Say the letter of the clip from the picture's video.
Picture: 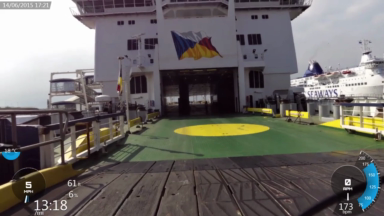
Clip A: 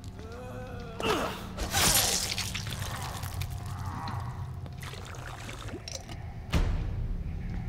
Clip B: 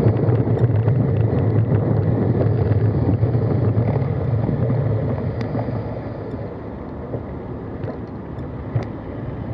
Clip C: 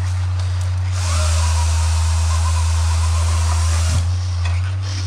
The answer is B